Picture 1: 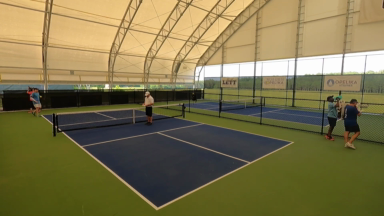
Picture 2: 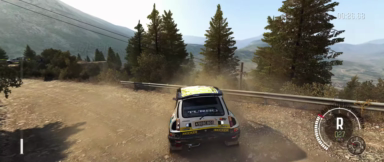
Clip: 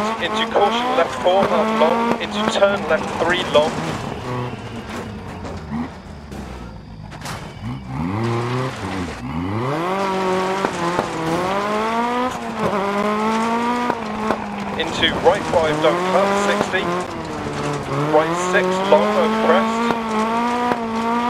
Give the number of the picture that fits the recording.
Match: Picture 2